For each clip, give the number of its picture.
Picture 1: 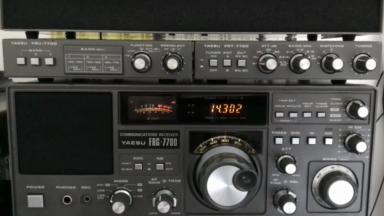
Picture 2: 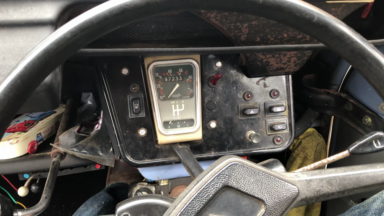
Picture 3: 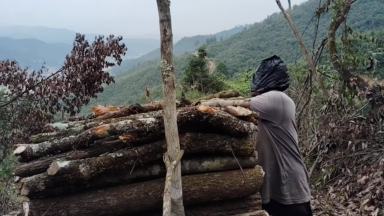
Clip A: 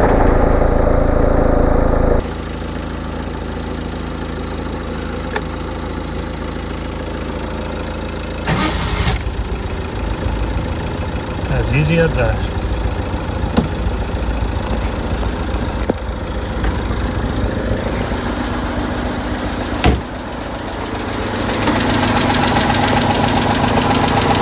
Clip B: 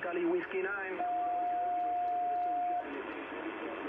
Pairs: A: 2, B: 1